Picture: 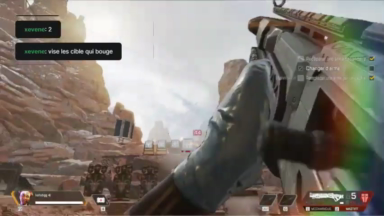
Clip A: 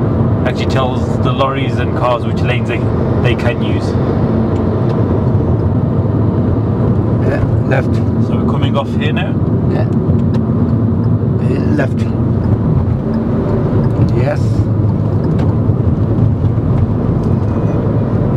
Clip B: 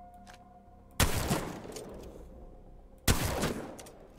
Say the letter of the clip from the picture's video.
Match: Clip B